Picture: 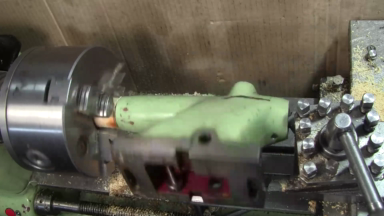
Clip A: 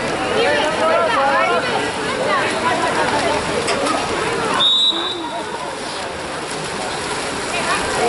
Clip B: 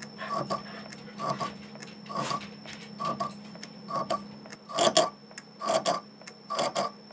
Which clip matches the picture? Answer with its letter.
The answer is B